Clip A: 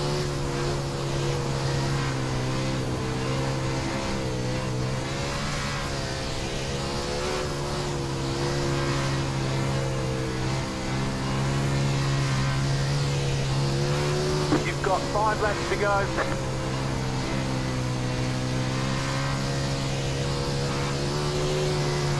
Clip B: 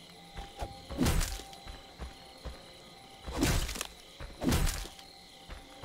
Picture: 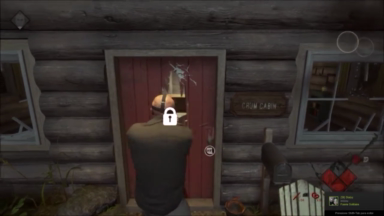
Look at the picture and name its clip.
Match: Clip B